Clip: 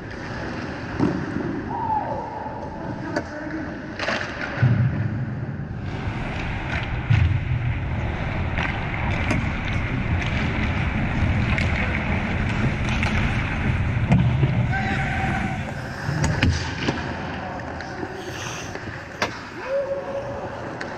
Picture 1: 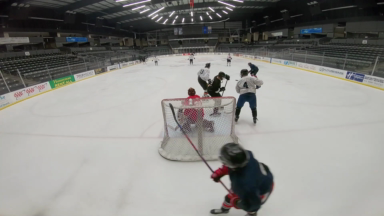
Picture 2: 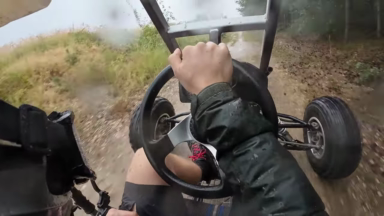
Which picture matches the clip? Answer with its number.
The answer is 1